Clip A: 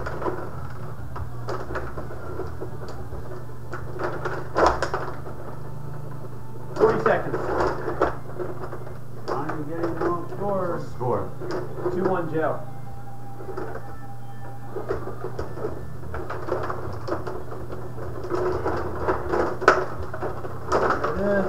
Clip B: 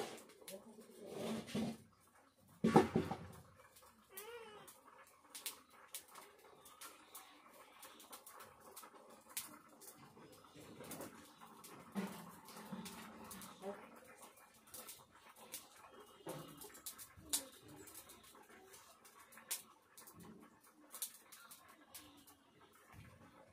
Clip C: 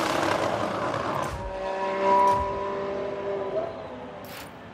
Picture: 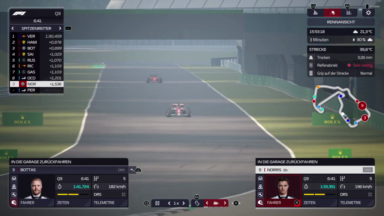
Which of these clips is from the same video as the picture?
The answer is C